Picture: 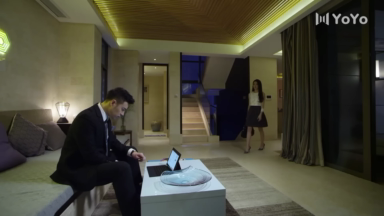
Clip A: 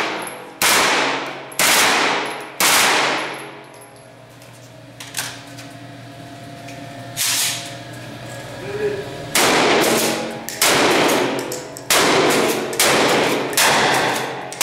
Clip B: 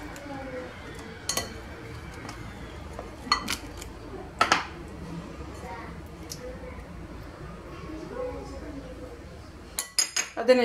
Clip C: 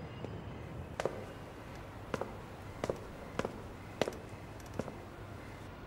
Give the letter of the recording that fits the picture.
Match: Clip C